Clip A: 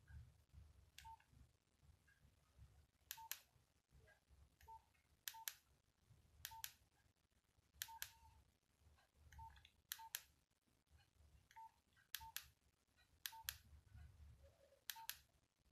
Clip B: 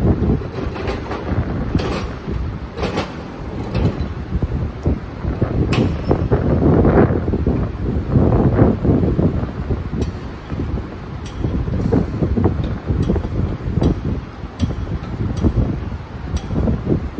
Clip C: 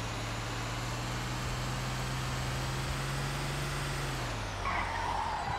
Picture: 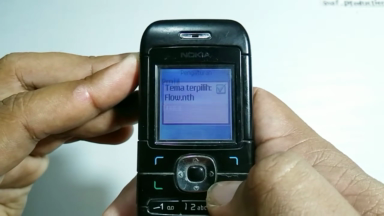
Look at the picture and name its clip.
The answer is A